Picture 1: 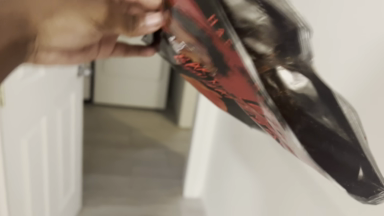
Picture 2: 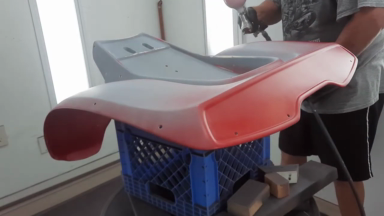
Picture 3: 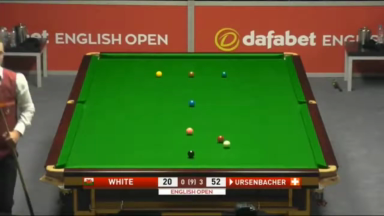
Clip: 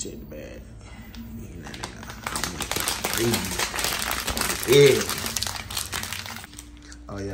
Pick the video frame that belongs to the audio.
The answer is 1